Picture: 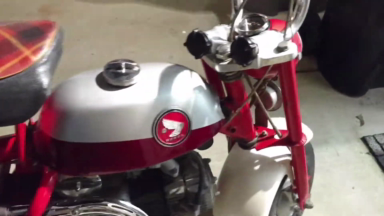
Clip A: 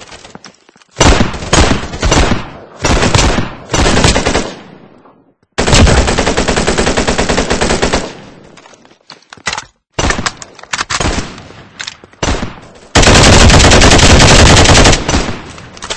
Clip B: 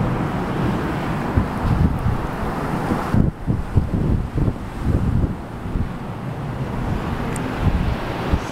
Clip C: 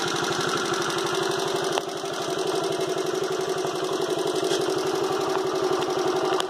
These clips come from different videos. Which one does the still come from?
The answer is C